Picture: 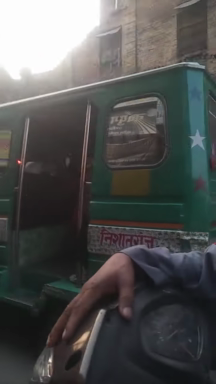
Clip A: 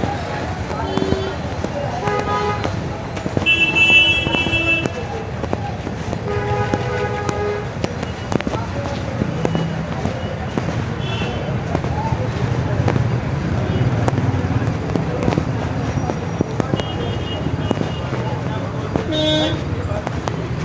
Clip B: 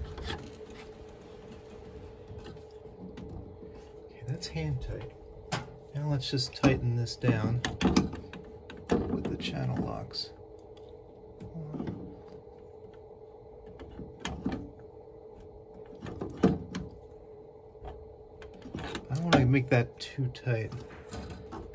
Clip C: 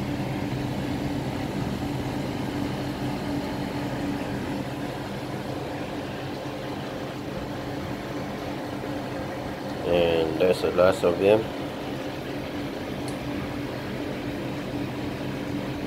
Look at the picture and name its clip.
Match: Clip A